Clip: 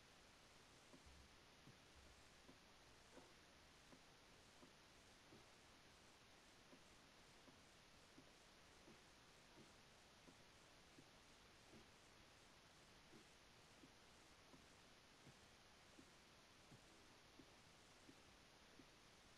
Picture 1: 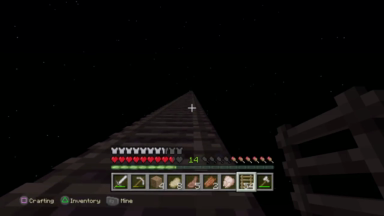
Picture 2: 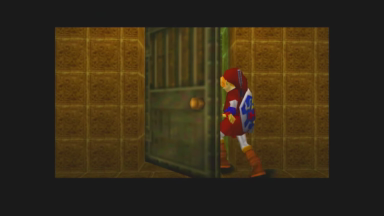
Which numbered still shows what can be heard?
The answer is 1